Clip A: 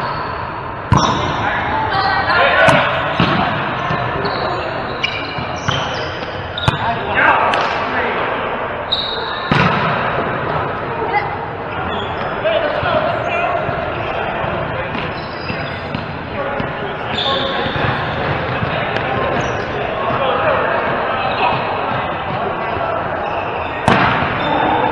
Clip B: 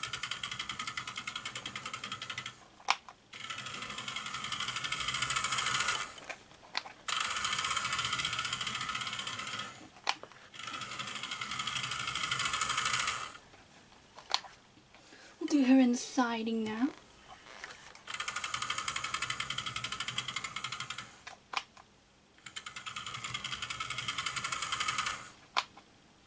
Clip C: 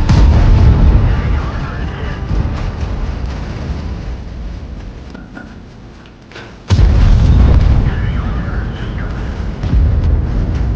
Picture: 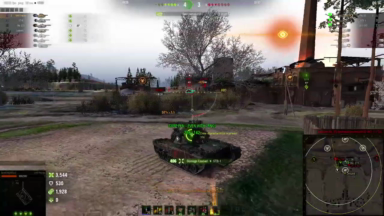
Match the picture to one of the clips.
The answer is C